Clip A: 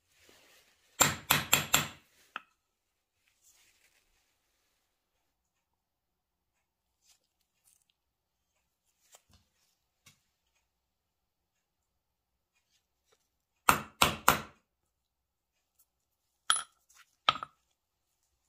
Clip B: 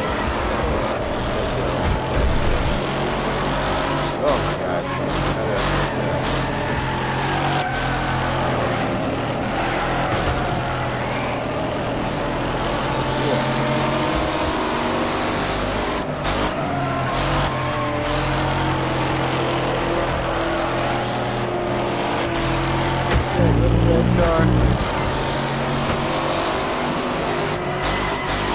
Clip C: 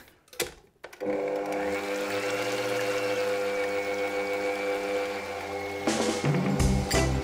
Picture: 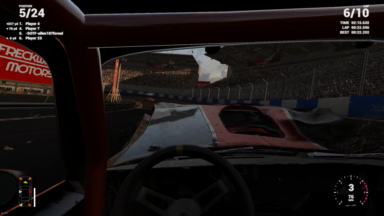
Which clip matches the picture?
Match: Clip B